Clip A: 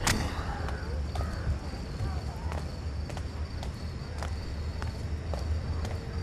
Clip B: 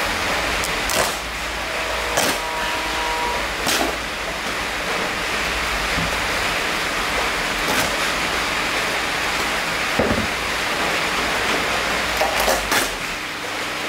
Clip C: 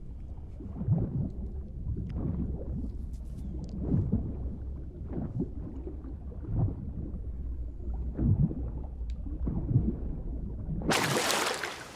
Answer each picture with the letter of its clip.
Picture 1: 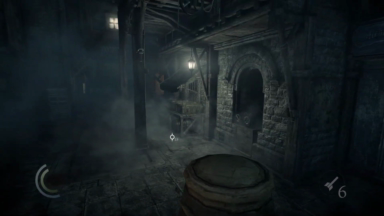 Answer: A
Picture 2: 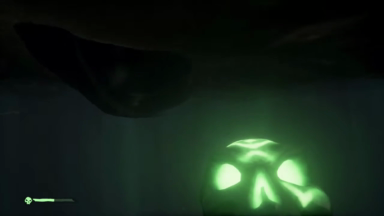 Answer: C